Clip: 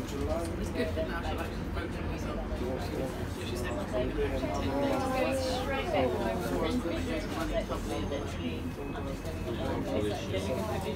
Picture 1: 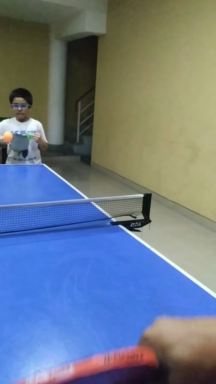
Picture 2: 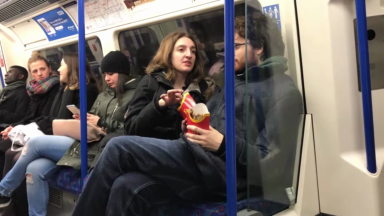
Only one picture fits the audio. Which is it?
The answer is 2